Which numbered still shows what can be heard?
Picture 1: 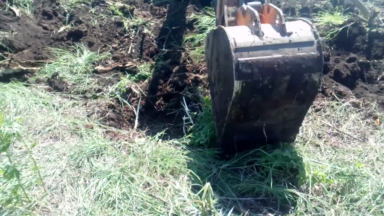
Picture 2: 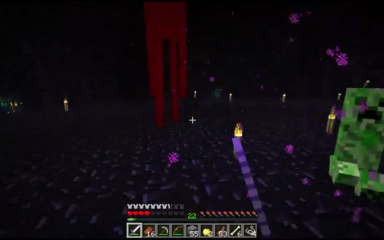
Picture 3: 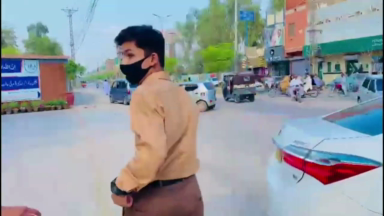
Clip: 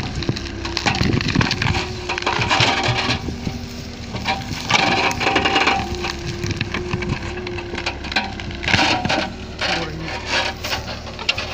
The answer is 1